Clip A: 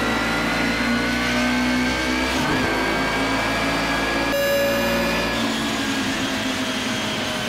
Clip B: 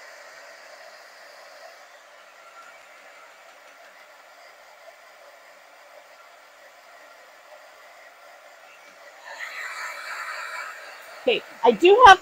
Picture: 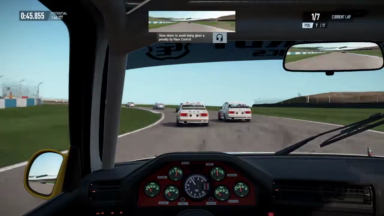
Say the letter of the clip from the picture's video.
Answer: A